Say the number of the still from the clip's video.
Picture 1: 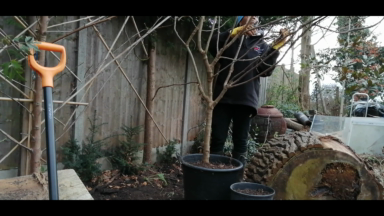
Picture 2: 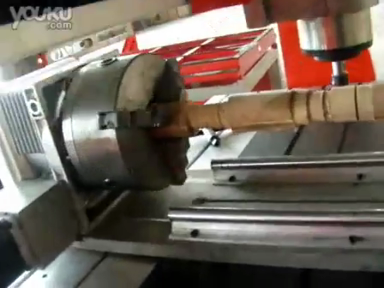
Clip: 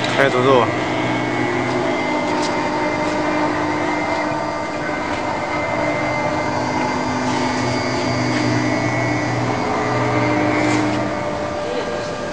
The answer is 2